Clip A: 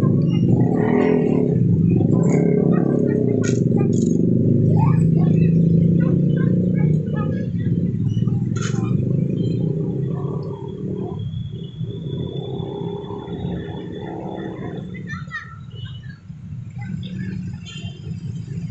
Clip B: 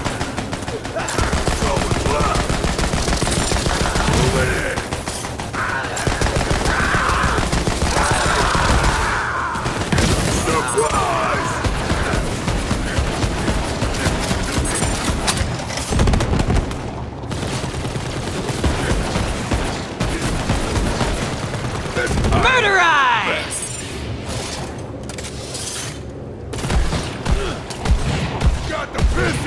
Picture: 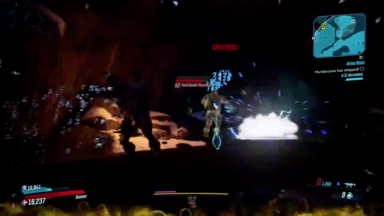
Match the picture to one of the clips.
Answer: B